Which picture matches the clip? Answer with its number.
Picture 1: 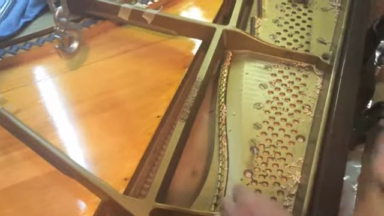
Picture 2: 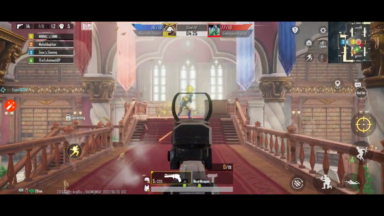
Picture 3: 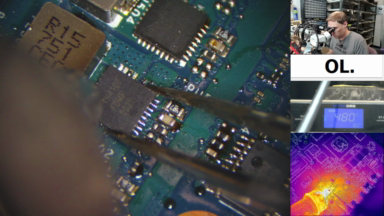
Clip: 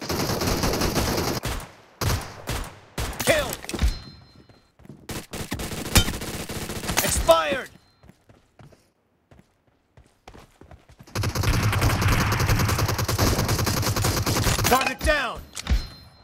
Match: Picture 2